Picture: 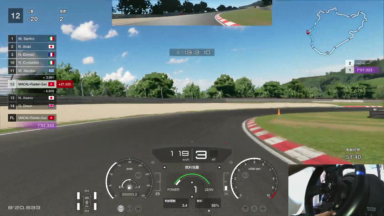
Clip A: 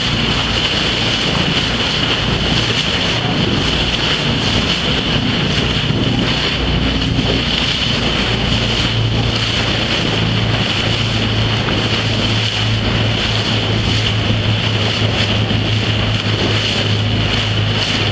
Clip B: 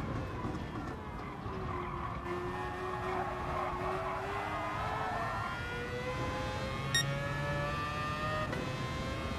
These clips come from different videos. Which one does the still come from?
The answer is B